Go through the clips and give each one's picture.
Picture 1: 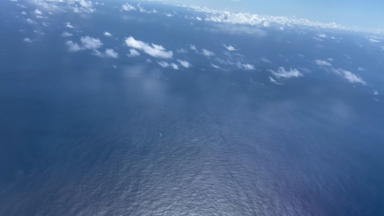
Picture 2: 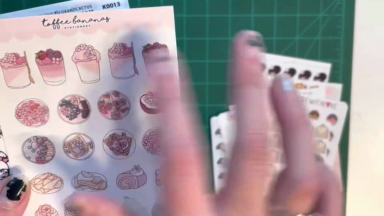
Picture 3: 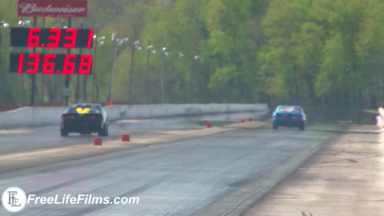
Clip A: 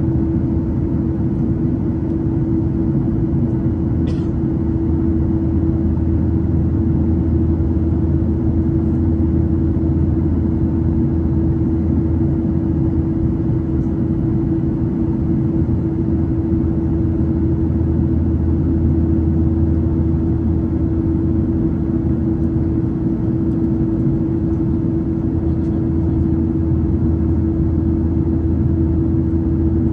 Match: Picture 1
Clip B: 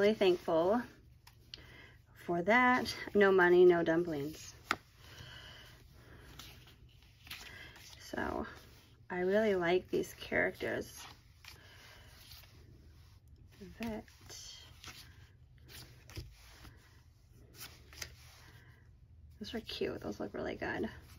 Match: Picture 2